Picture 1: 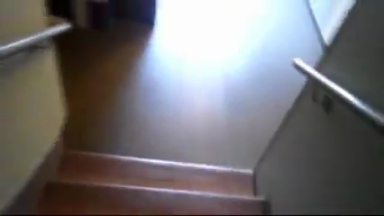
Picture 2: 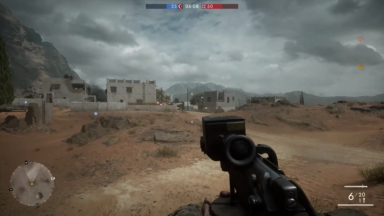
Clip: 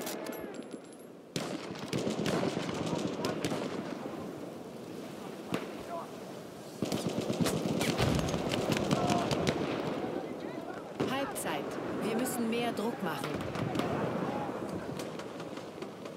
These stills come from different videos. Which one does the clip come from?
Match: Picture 2